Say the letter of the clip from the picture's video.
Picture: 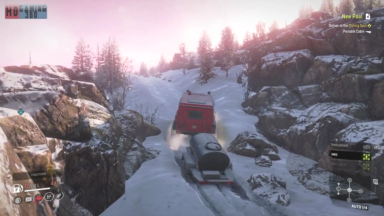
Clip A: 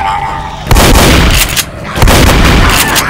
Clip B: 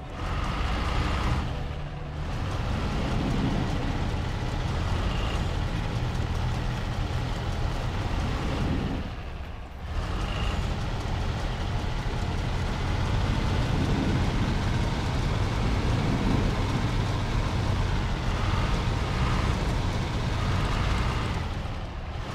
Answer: B